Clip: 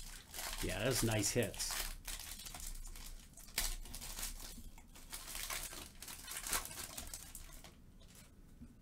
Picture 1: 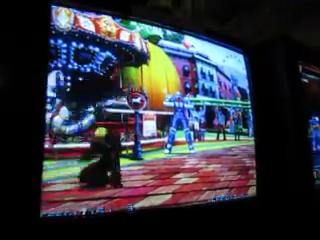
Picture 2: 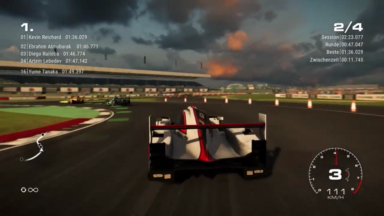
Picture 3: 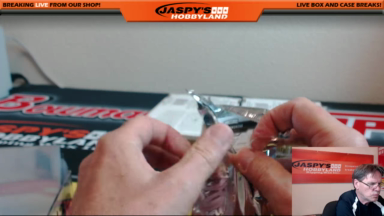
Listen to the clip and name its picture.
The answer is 3